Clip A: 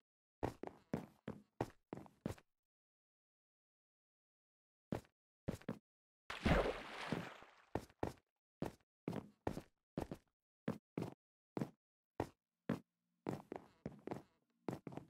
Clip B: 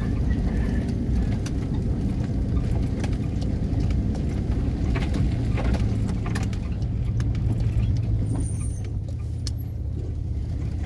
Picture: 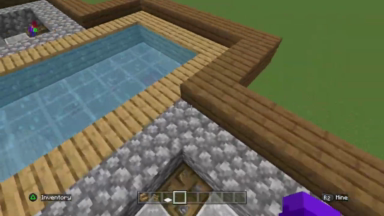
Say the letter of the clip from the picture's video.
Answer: A